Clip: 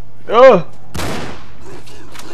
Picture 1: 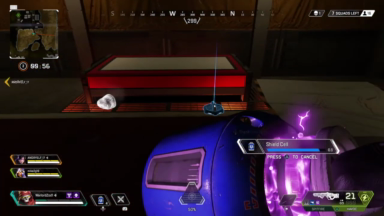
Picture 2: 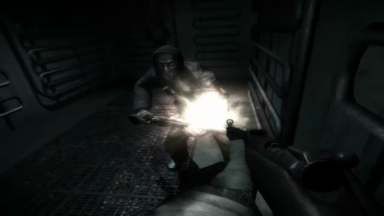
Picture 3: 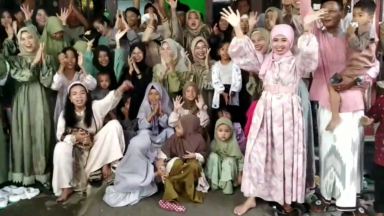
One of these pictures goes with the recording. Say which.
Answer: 2